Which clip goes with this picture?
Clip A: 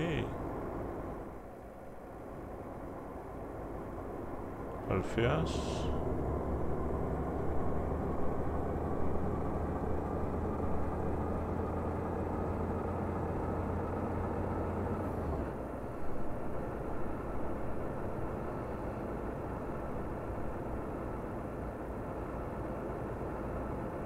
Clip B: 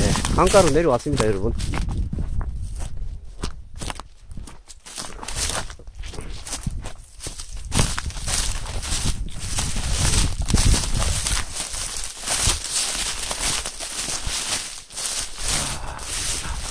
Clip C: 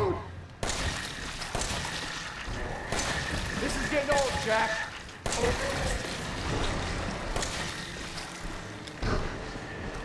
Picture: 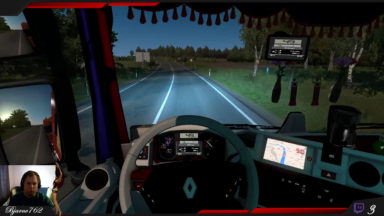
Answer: A